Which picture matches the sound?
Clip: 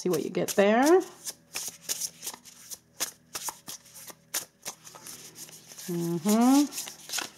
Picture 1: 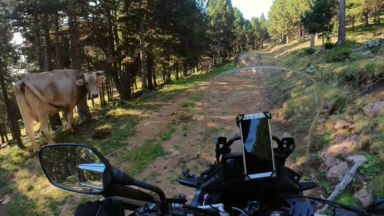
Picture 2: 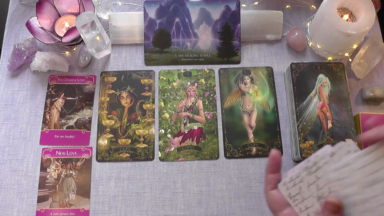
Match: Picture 2